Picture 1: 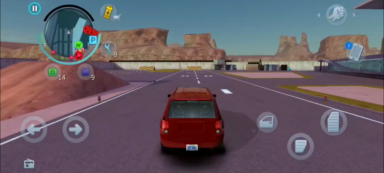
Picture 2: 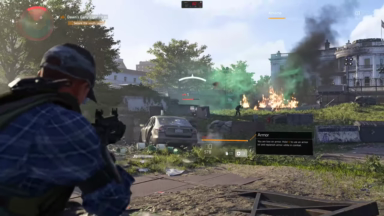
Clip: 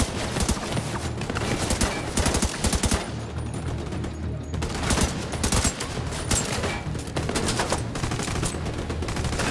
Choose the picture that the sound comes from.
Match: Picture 2